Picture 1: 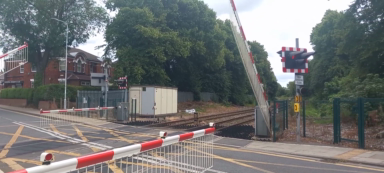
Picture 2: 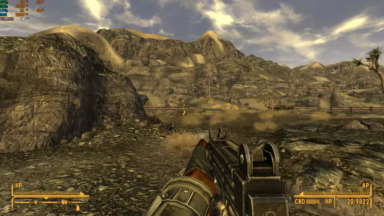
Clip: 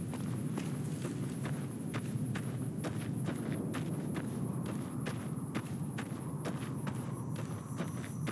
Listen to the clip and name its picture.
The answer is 2